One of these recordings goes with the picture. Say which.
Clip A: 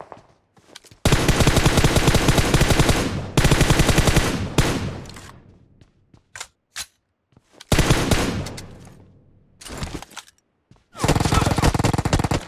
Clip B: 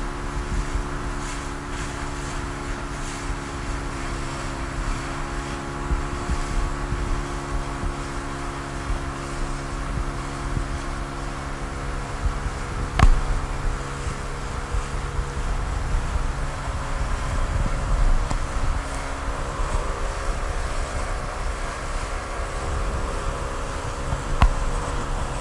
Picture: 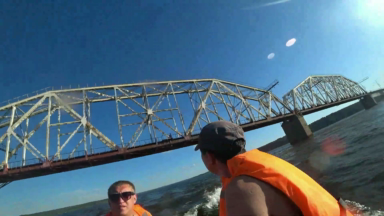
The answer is B